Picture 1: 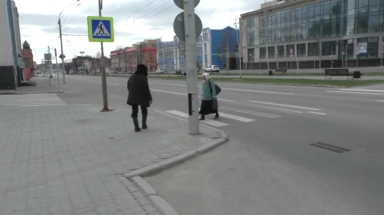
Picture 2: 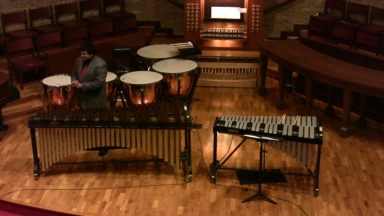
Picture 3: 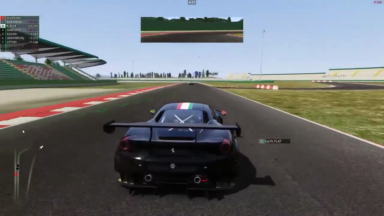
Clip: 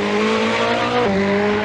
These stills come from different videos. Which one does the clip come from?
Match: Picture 3